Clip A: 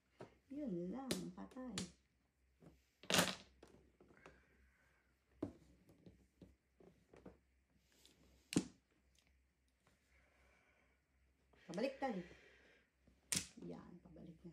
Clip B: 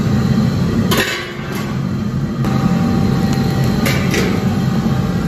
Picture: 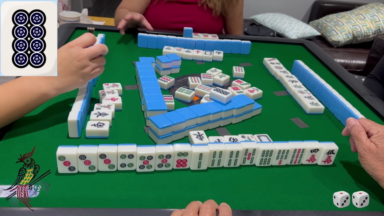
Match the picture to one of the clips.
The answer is A